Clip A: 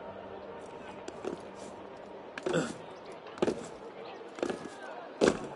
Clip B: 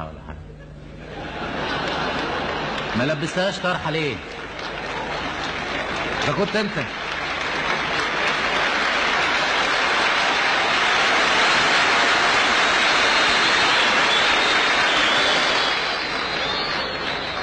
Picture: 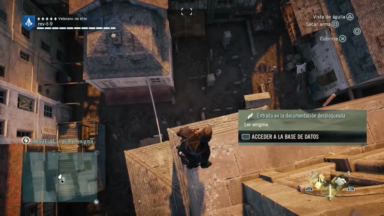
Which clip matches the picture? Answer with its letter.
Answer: A